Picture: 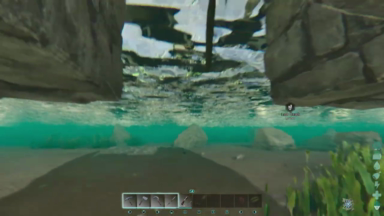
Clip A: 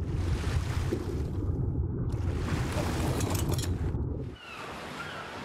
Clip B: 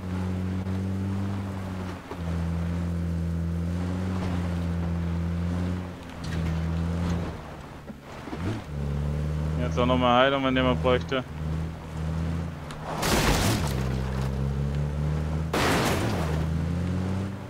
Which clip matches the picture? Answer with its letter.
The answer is A